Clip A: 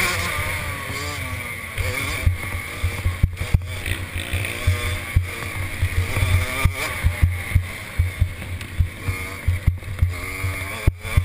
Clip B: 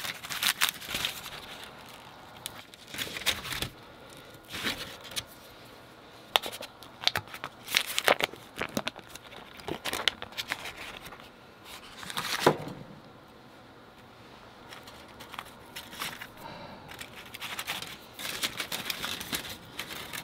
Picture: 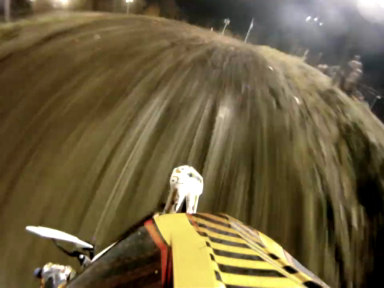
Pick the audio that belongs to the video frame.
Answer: A